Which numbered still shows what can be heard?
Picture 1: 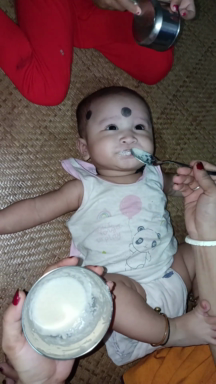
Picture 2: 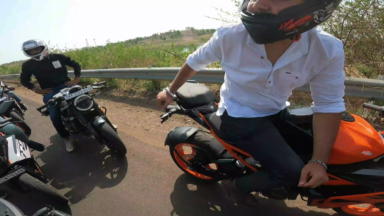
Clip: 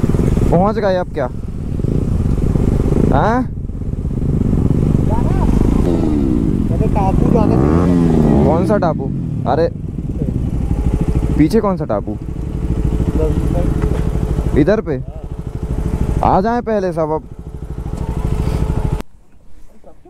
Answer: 2